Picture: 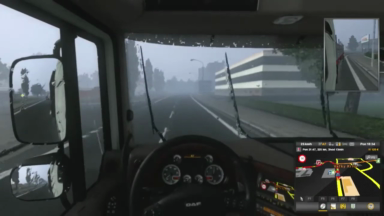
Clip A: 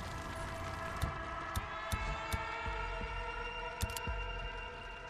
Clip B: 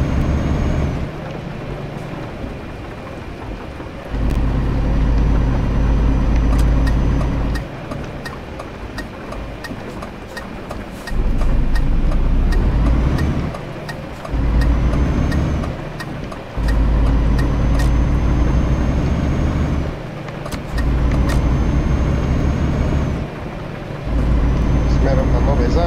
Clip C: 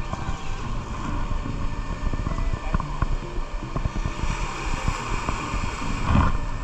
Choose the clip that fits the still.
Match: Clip B